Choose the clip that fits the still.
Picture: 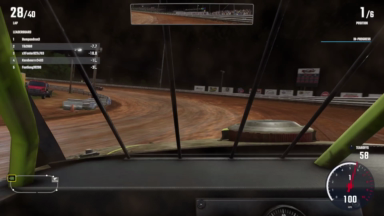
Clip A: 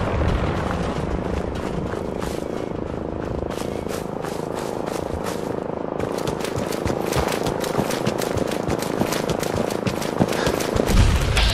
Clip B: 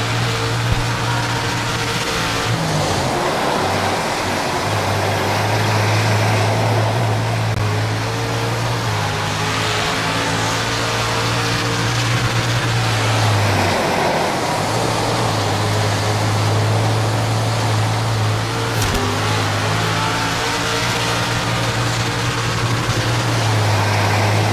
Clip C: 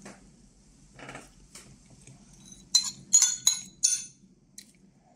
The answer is B